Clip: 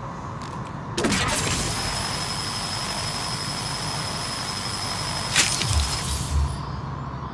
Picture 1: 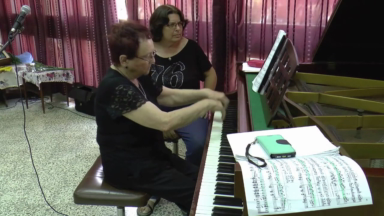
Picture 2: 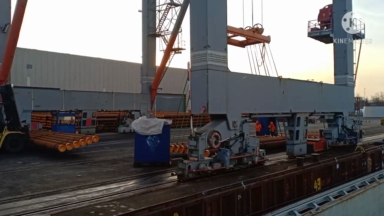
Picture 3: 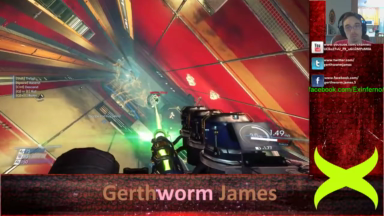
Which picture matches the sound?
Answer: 3